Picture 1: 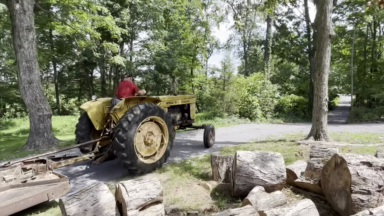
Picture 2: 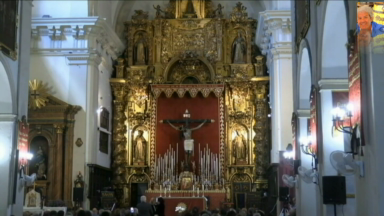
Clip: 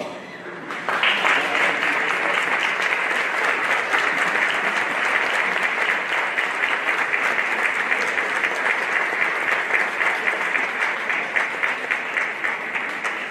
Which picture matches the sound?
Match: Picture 2